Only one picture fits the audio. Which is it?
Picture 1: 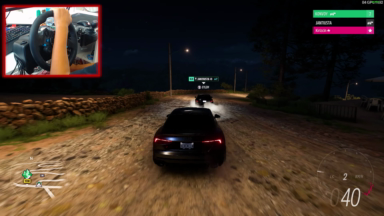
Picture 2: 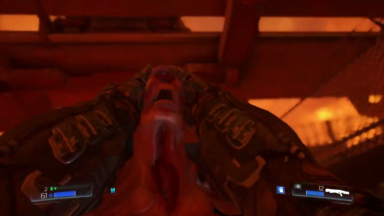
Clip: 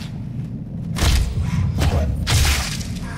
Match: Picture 2